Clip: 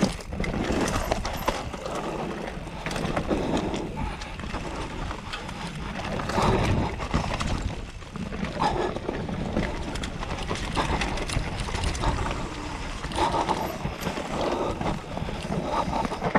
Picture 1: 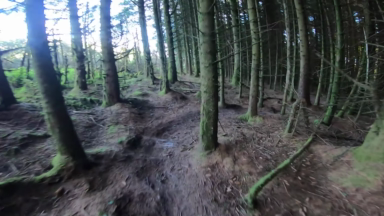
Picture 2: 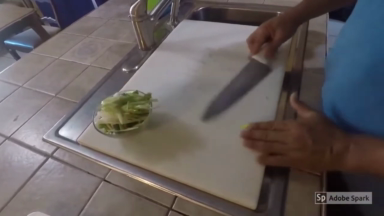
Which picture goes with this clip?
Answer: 1